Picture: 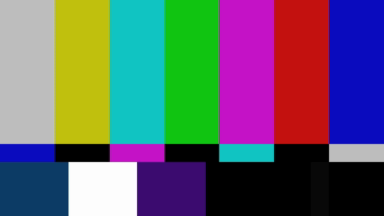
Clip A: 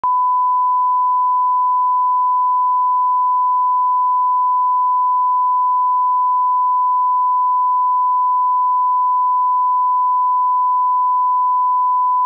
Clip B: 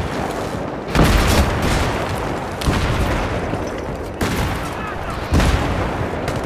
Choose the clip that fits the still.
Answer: A